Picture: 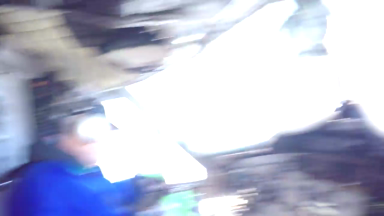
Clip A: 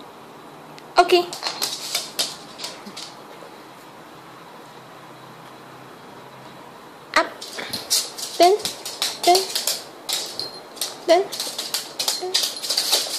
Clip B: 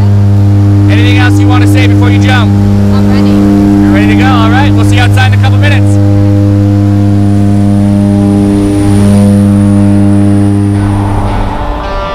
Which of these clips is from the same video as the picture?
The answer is B